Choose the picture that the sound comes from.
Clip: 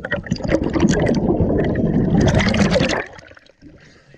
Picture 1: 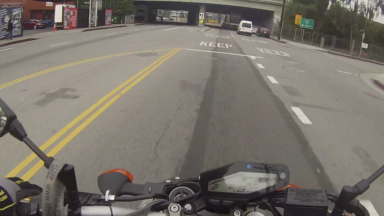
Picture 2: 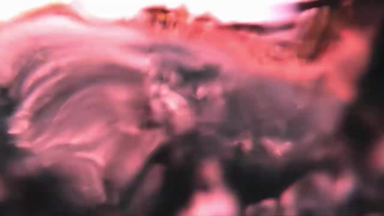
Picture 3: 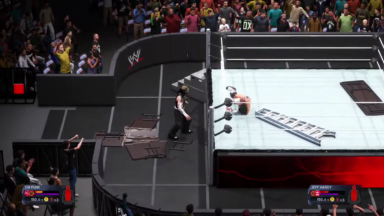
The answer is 2